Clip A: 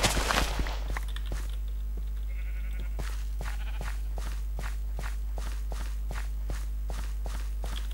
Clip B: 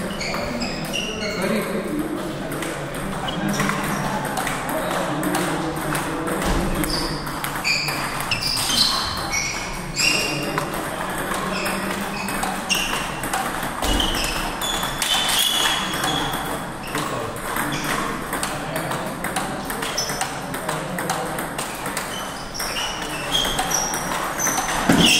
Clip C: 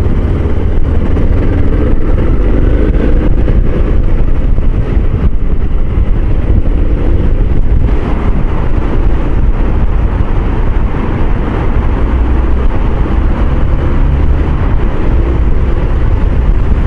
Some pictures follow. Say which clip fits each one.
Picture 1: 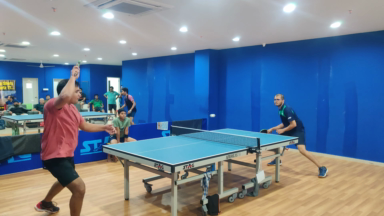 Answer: B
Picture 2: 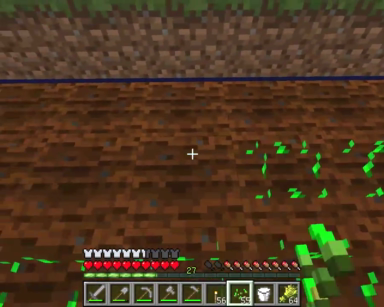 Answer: A